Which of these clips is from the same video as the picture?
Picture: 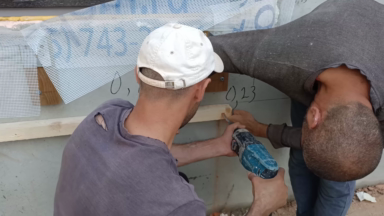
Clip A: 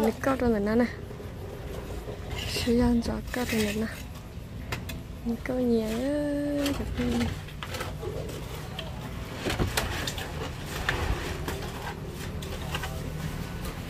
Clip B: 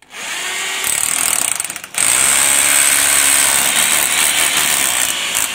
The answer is B